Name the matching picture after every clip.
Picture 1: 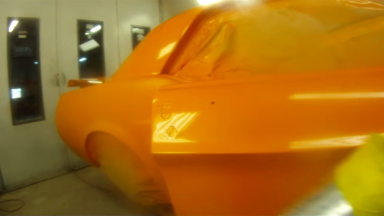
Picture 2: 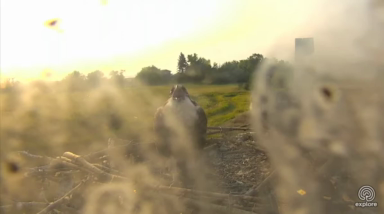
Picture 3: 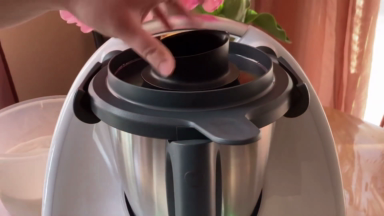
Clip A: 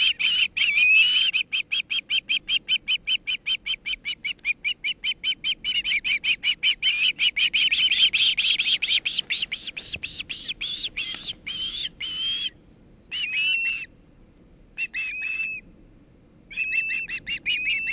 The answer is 2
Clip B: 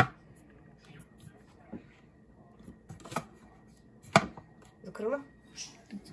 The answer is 3